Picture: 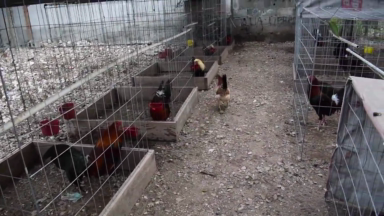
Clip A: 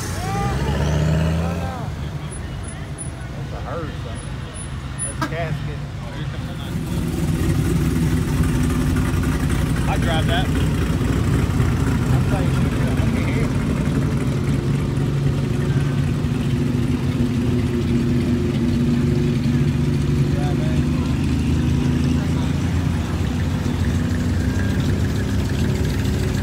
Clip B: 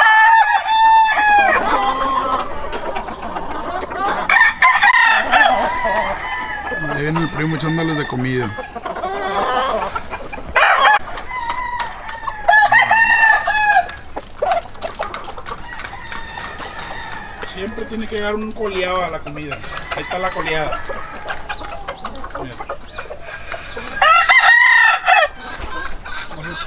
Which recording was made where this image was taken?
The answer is B